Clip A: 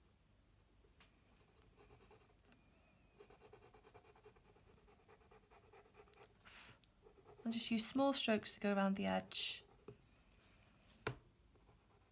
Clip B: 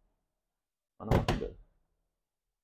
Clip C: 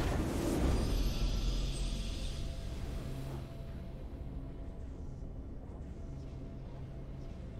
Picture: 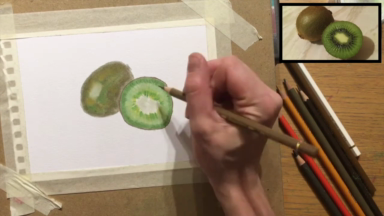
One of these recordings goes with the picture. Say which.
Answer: A